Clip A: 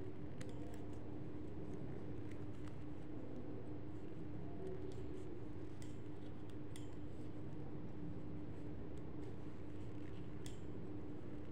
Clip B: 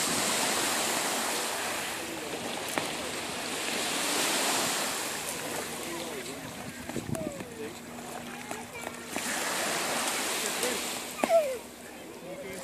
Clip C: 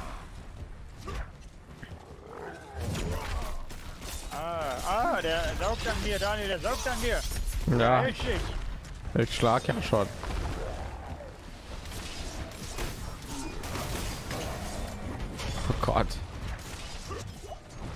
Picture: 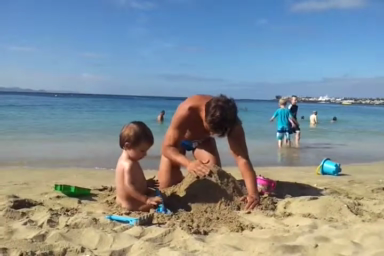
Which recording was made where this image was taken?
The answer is B